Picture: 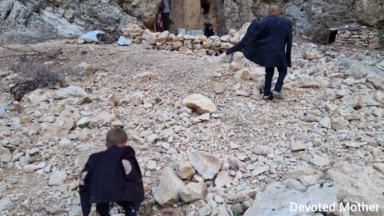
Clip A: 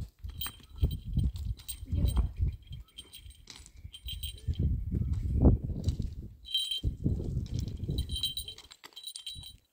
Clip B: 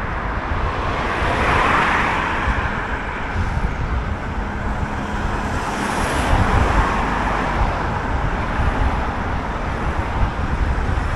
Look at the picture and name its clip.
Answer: A